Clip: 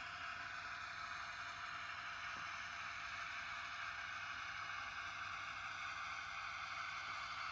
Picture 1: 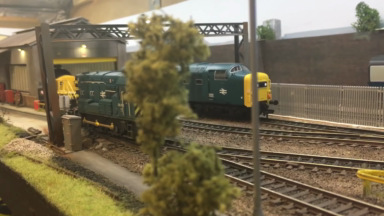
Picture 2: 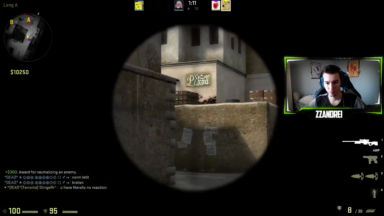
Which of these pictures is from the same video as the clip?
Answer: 1